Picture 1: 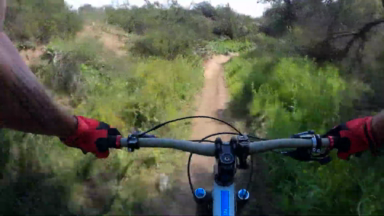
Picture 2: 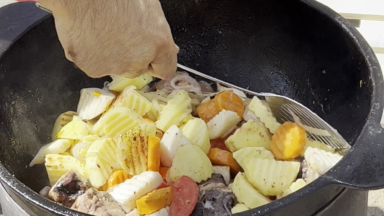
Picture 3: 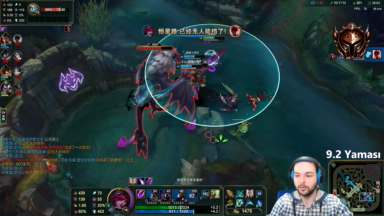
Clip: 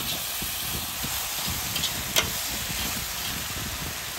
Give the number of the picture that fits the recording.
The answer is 2